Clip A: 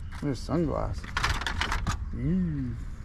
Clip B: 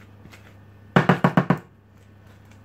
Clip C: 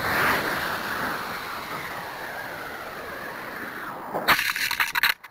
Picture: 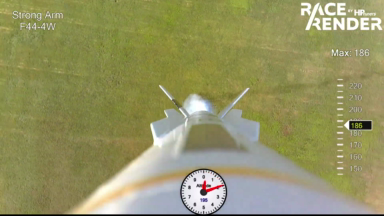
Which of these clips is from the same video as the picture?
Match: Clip C